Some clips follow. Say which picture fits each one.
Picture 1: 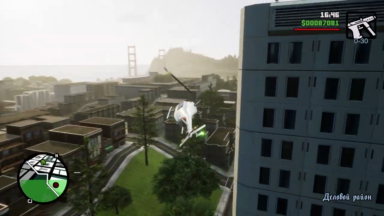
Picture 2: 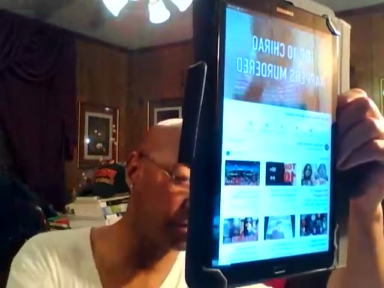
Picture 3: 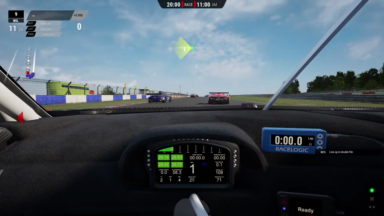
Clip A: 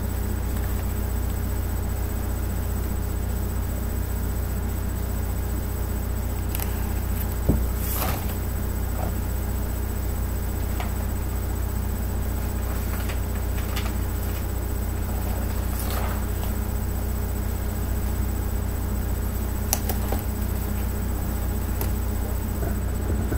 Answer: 2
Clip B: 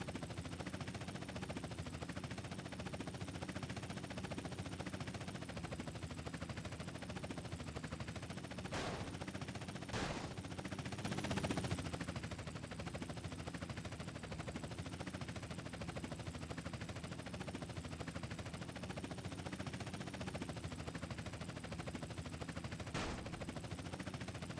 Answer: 1